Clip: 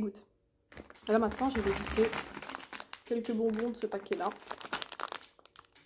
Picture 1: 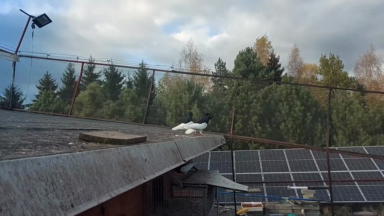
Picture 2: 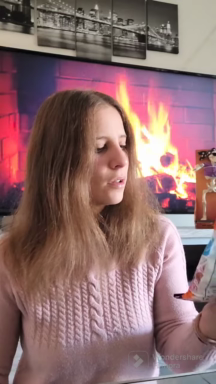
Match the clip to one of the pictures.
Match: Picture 2